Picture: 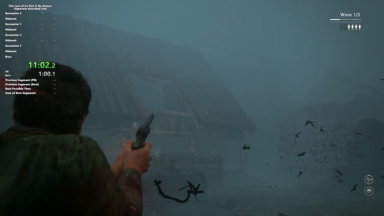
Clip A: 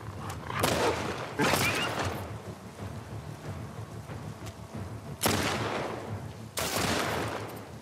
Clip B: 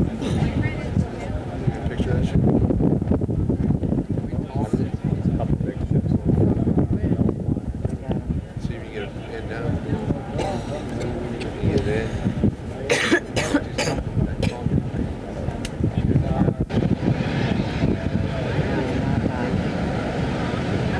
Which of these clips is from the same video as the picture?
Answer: A